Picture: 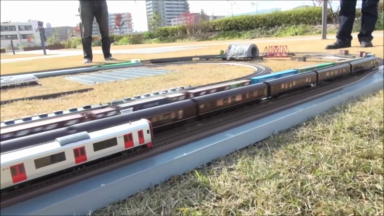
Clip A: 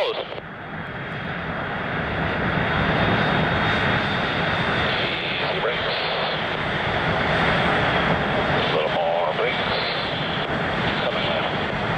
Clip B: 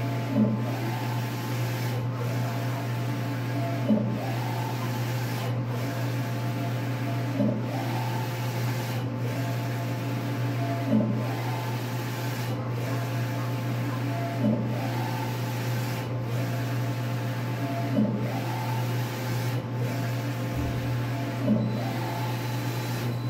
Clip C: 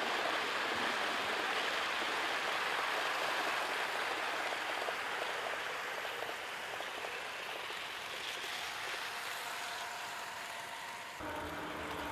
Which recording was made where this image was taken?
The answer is C